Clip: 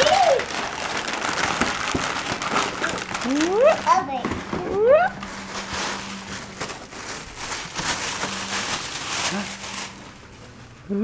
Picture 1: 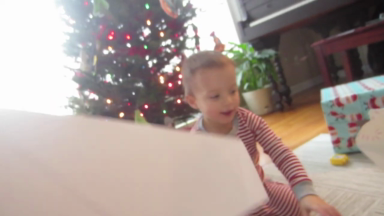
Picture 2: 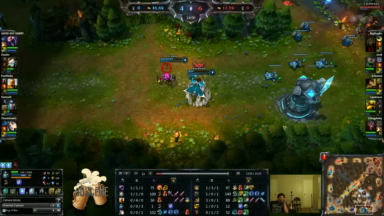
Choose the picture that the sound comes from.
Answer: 1